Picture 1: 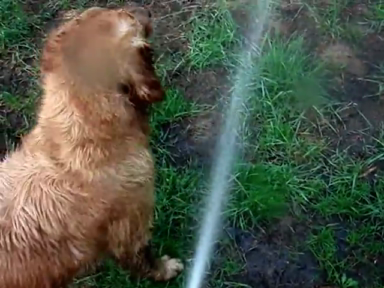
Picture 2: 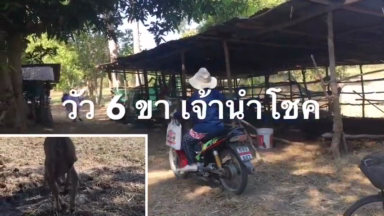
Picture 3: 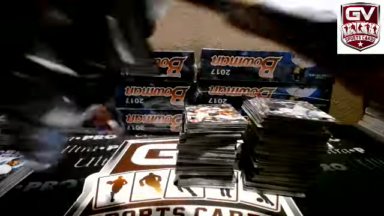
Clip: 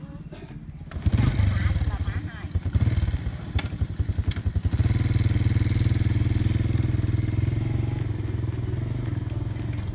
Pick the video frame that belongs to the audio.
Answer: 2